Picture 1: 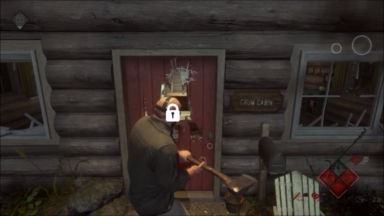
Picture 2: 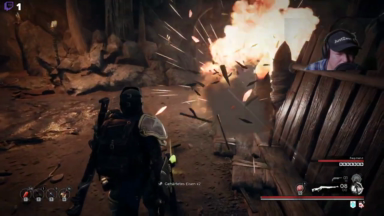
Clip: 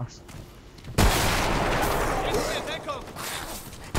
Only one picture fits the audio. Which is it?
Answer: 2